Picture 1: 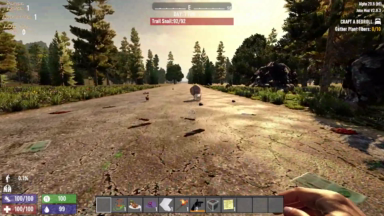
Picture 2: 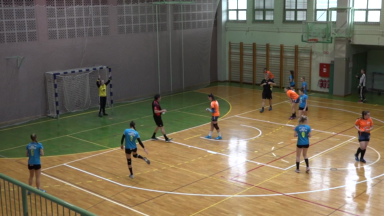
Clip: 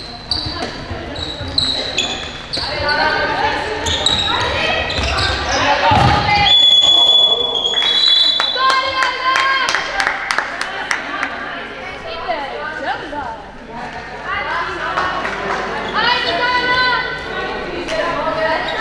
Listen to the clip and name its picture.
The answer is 2